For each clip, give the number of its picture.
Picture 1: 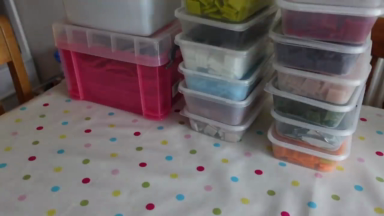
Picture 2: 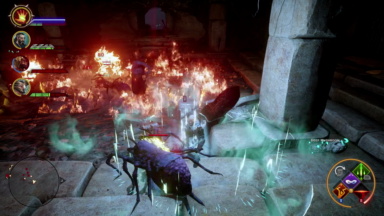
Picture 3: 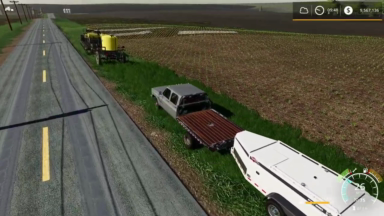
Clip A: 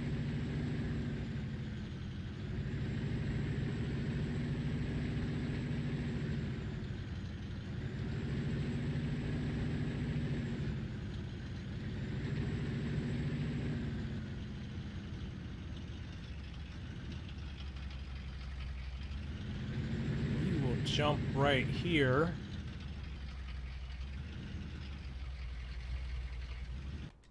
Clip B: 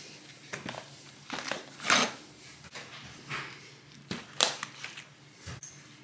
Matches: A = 3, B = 1